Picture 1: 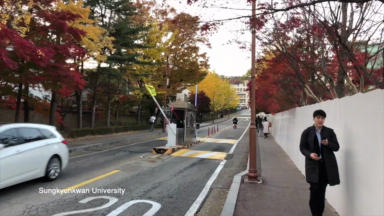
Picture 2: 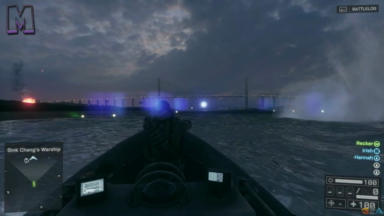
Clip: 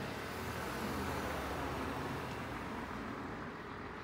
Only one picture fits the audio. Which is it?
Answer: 1